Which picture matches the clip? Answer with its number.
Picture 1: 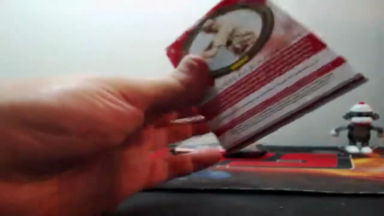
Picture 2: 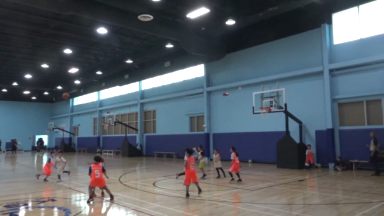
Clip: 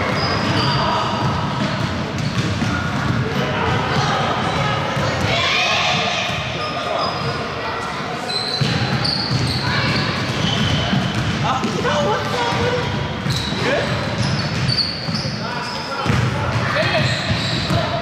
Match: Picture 2